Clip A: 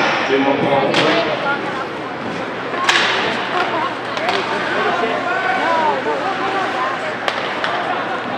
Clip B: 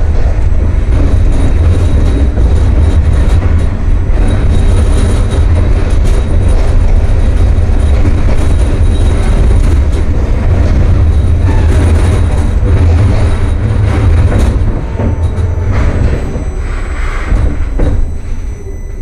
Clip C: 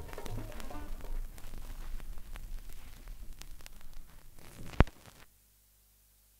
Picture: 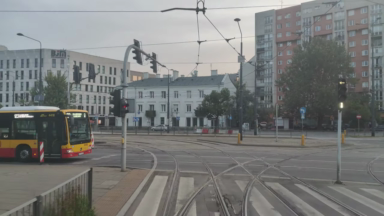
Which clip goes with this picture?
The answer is B